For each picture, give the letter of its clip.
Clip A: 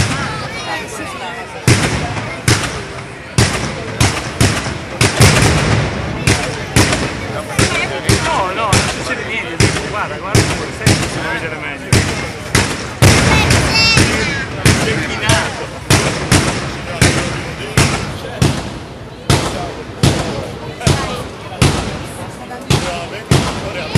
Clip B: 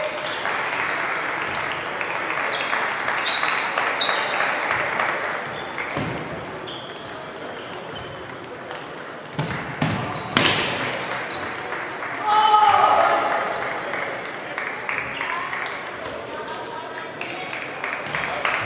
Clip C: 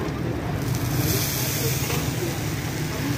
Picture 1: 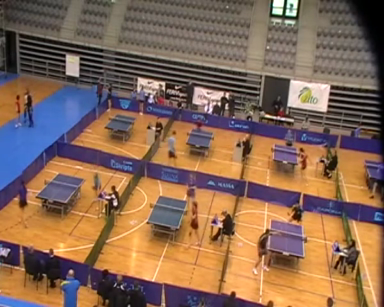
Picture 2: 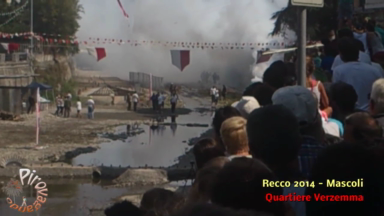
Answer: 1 B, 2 A